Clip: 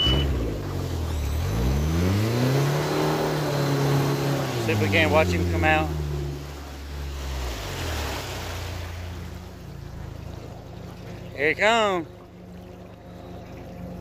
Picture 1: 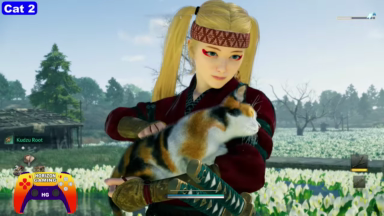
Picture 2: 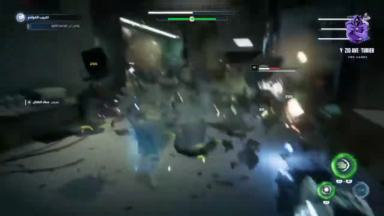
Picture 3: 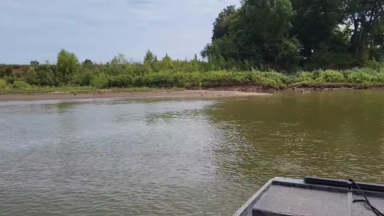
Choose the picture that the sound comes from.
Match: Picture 3